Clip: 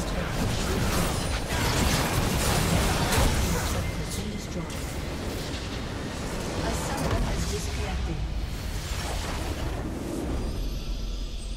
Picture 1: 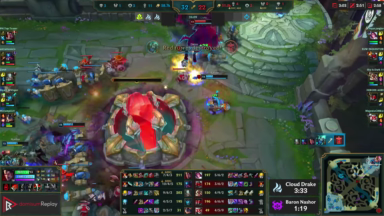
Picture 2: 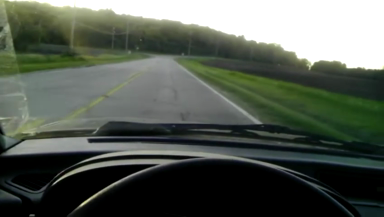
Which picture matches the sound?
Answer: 1